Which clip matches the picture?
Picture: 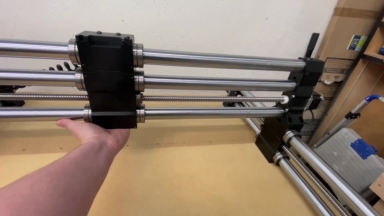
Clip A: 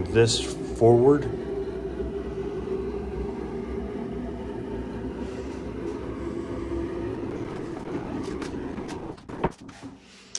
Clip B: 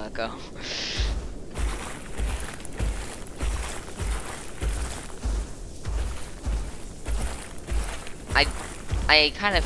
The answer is A